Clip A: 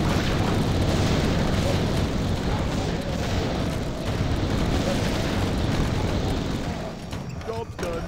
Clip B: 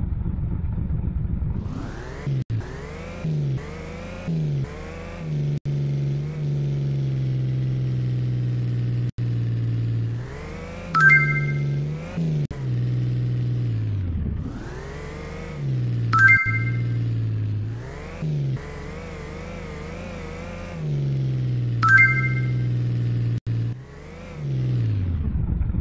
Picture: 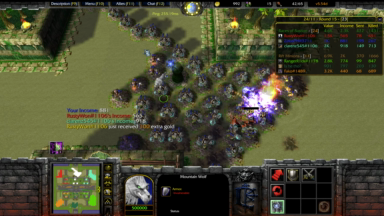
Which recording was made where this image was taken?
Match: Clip A